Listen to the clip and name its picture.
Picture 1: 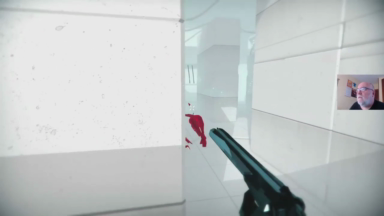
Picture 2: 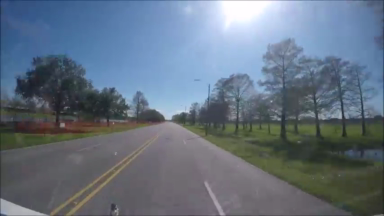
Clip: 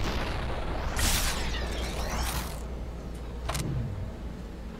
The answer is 1